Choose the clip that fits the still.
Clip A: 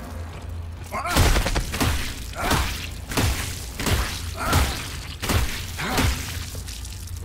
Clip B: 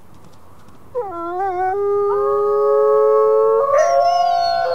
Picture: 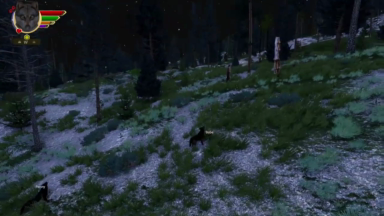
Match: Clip B